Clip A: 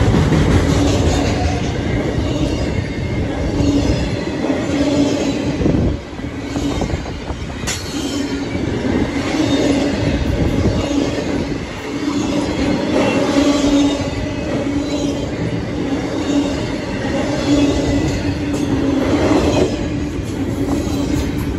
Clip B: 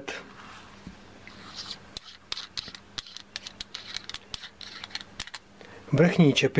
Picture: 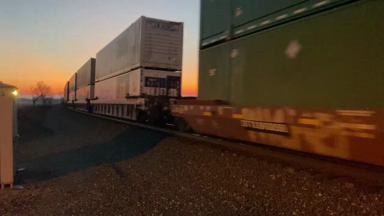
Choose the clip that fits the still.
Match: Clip A